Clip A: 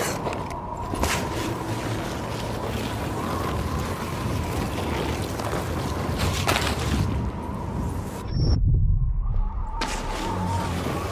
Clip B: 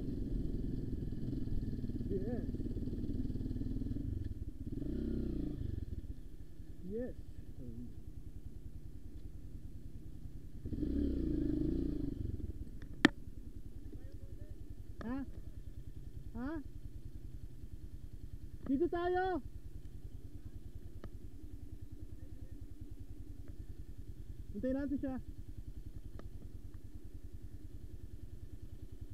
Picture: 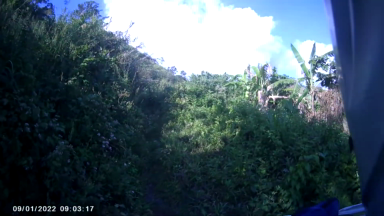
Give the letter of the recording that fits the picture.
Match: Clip B